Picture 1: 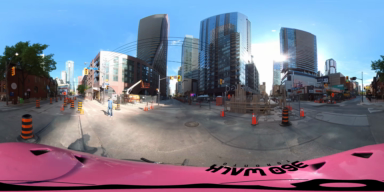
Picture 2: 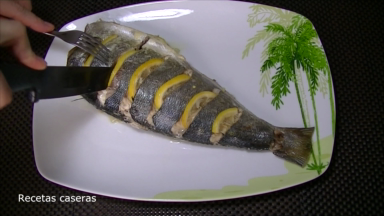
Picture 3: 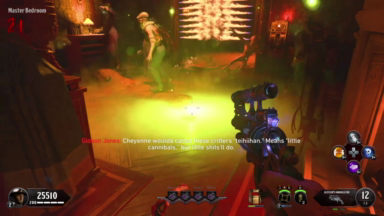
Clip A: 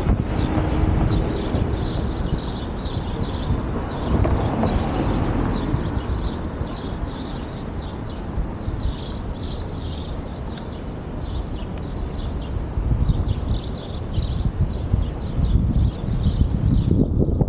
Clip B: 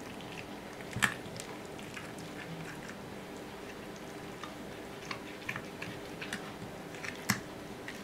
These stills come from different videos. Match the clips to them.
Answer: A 1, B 2